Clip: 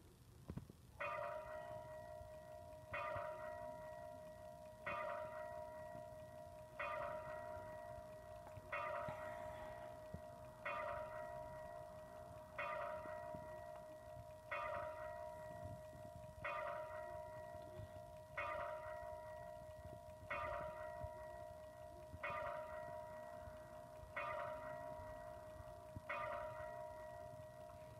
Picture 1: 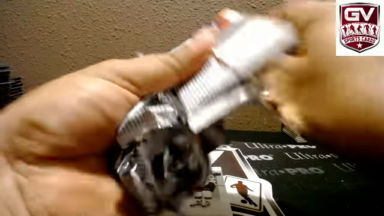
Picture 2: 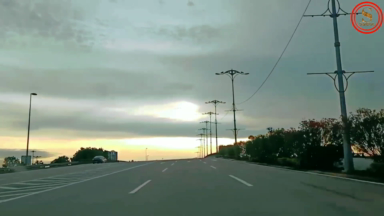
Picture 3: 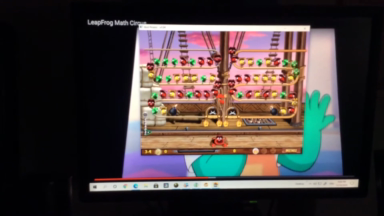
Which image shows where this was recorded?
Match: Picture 3